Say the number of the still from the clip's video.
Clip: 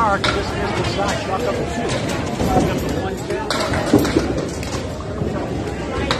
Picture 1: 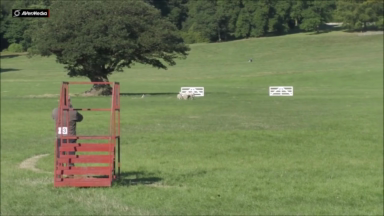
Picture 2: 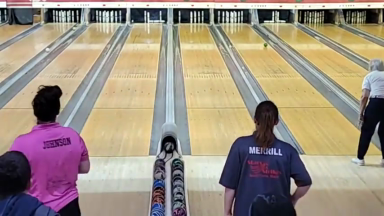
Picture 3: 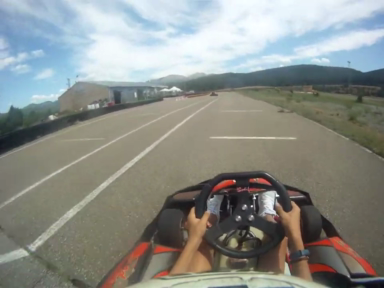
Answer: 2